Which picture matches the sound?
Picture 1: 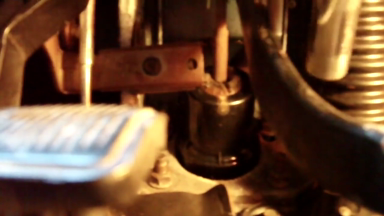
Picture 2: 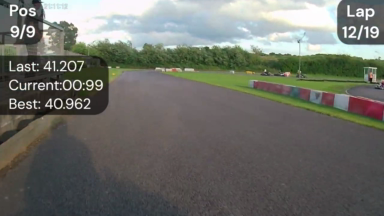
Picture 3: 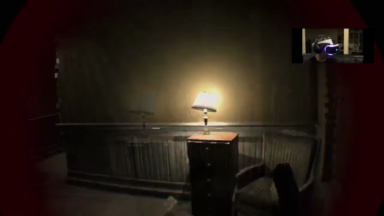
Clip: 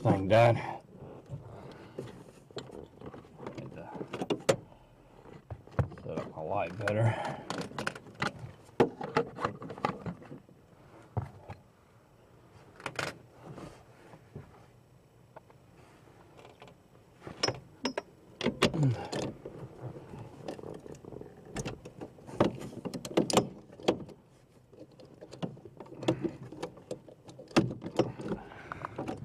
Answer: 1